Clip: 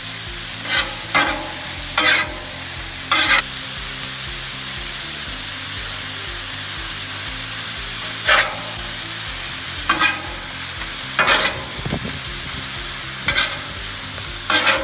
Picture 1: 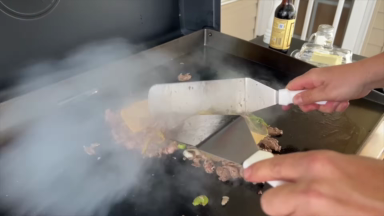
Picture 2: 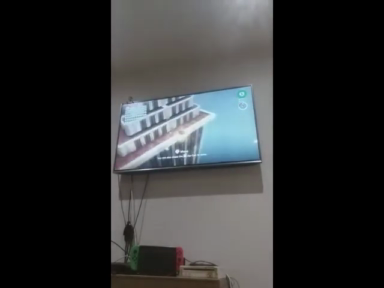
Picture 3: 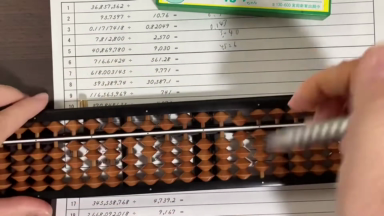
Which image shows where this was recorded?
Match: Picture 1